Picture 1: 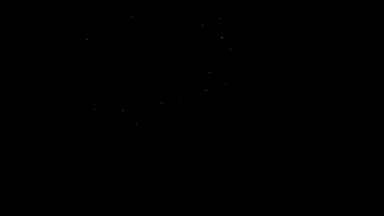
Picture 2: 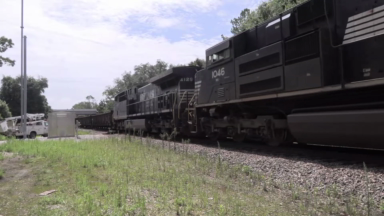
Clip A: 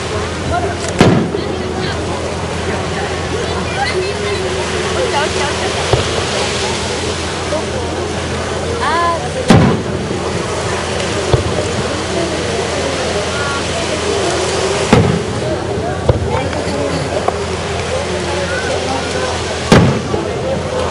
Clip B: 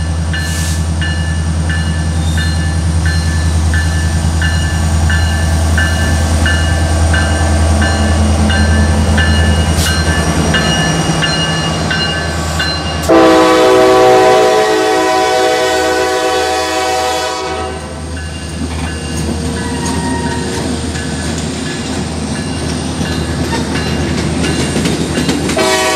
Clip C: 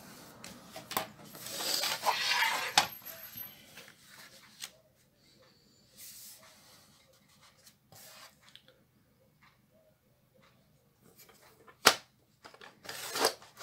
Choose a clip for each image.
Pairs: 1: A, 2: B